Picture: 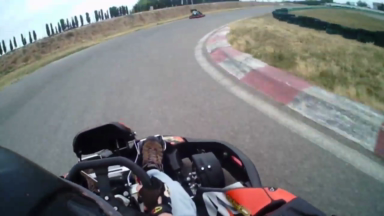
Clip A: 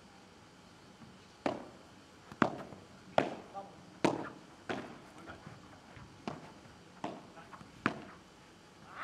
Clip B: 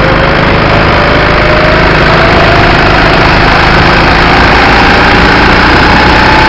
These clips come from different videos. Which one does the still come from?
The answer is B